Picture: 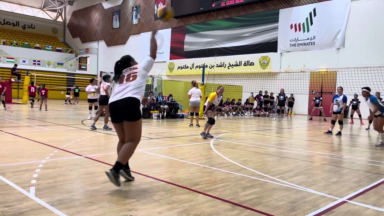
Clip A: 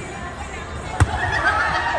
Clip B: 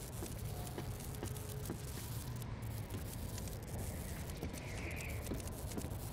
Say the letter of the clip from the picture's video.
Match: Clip A